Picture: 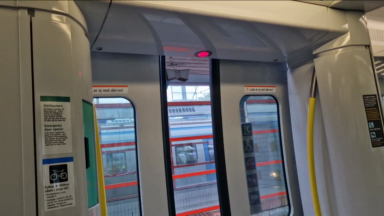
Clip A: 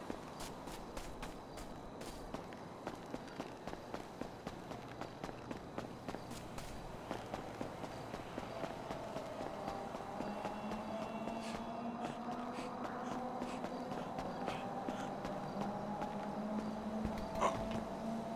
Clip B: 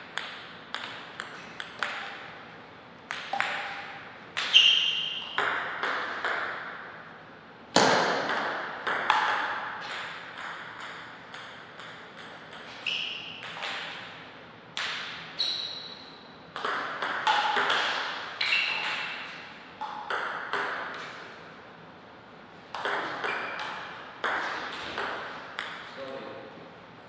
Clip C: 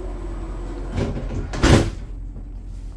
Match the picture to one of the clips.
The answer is C